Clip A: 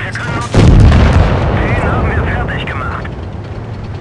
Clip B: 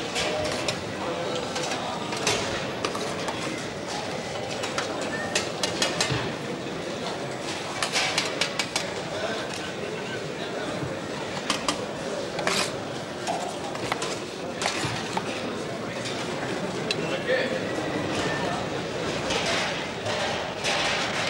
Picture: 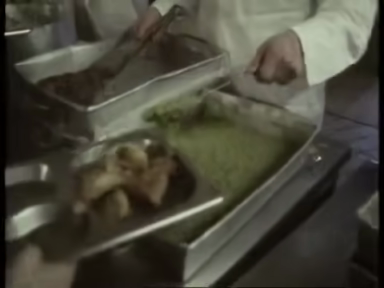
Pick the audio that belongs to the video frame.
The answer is B